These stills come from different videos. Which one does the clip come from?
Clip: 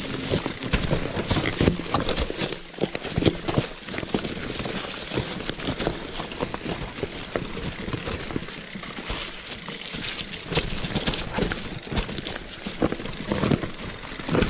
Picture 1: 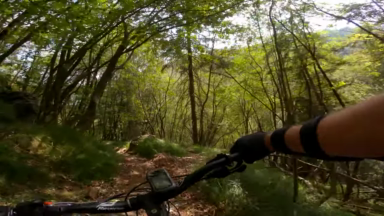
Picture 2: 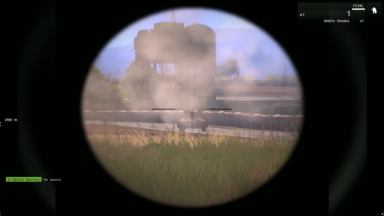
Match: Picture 1